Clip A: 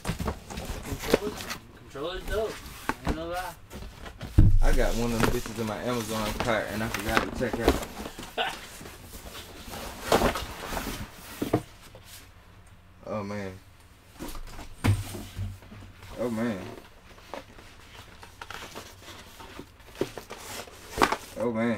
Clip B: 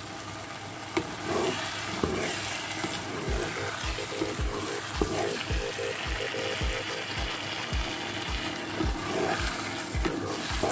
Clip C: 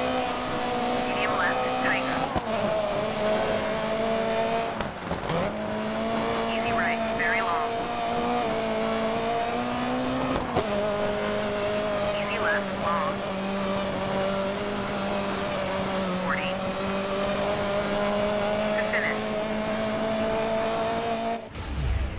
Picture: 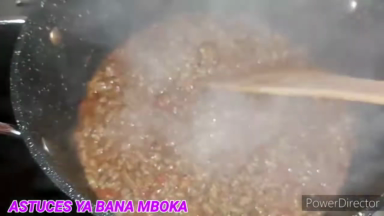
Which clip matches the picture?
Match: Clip B